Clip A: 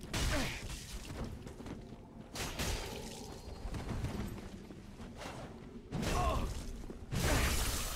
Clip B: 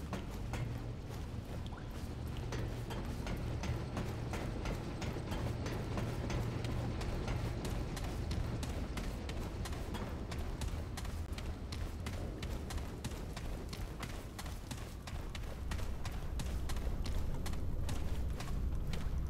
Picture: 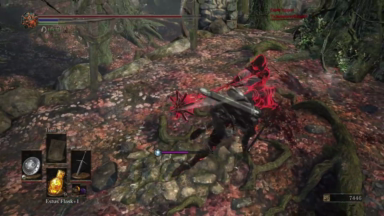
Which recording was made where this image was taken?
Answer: A